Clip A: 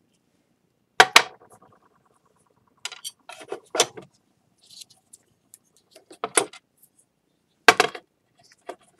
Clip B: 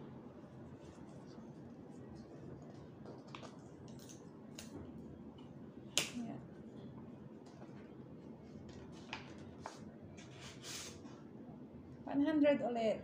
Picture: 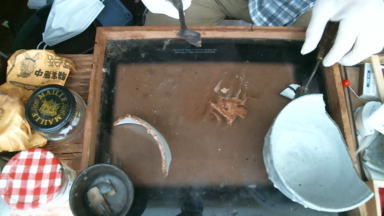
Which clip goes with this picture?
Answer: A